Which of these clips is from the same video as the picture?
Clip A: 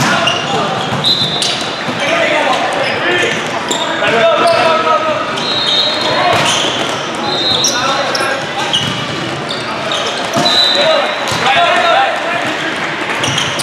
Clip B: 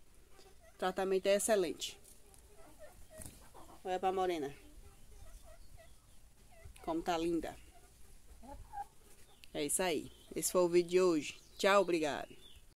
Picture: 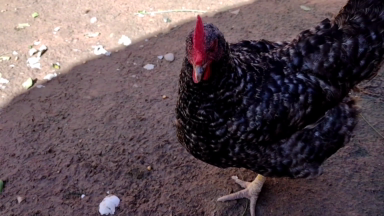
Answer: B